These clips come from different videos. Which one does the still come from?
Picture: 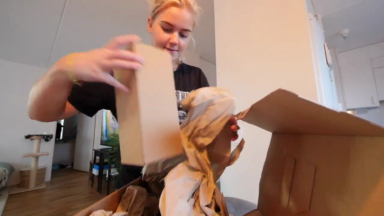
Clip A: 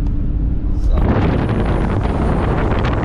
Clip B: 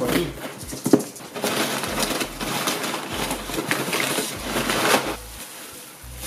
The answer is B